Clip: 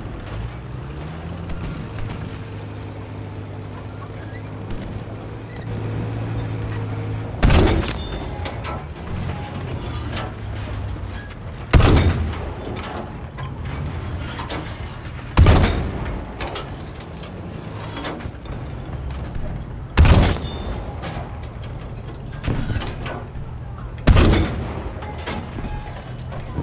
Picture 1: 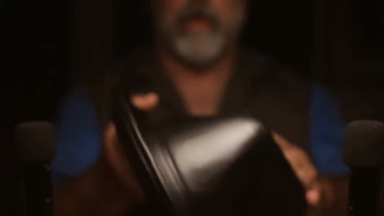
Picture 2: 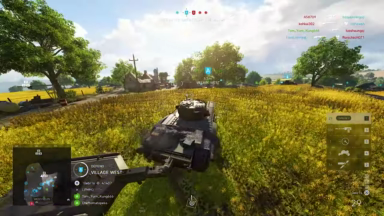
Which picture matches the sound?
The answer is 2